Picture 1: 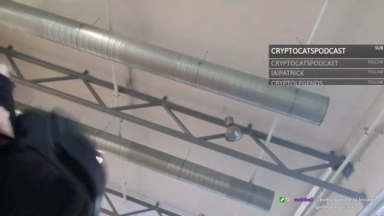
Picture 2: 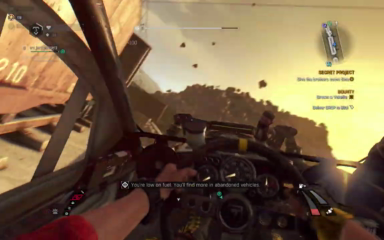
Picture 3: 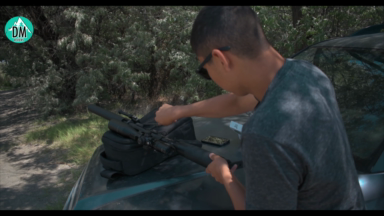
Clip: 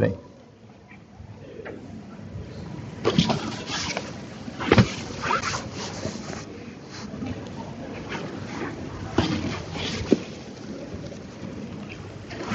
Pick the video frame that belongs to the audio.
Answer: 1